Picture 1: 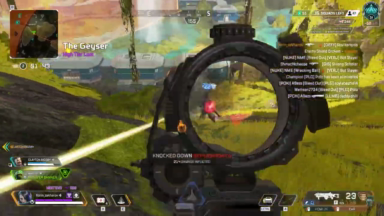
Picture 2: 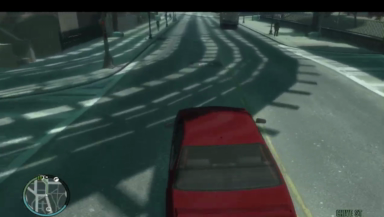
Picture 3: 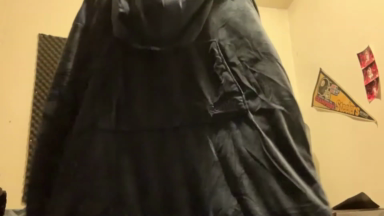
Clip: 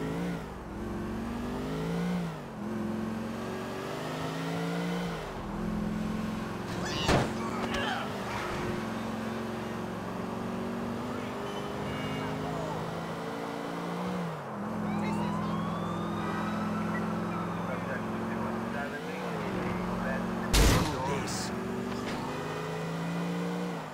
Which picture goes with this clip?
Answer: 2